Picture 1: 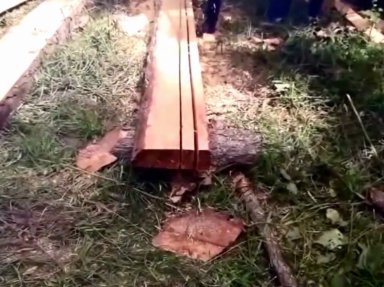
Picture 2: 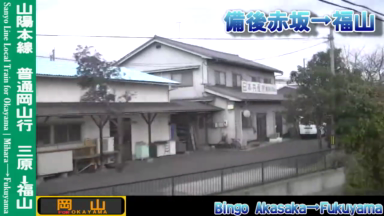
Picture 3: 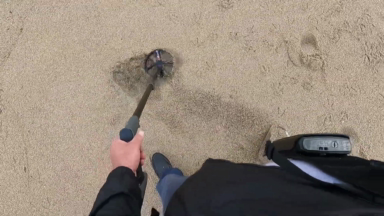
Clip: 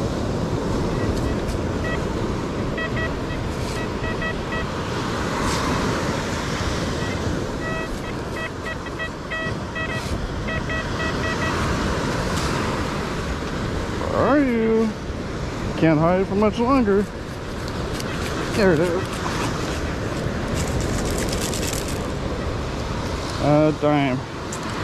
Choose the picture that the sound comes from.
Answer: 3